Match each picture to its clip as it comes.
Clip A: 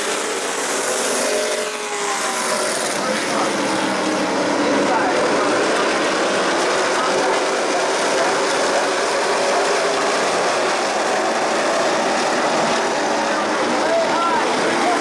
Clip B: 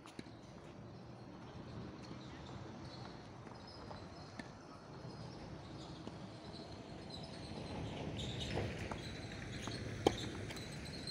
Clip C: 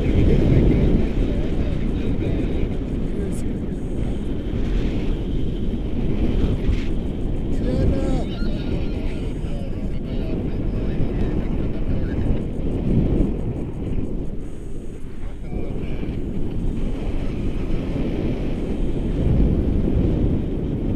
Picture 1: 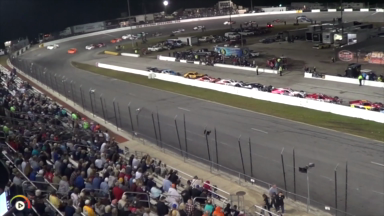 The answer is A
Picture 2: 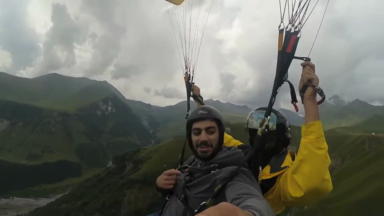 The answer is C